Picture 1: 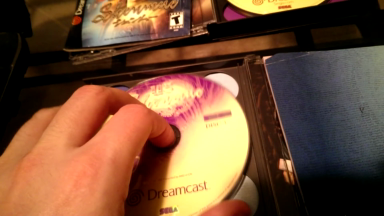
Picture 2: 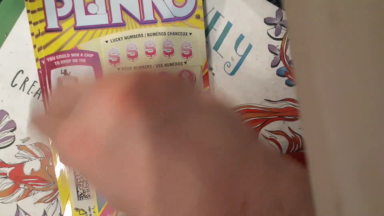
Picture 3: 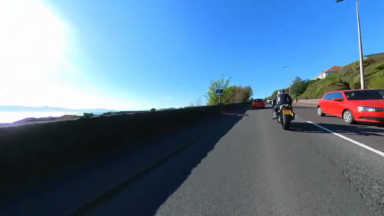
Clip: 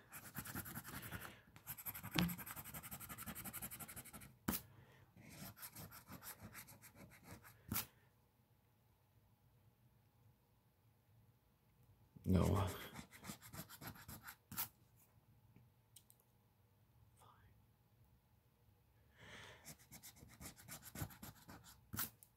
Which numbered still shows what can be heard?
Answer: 2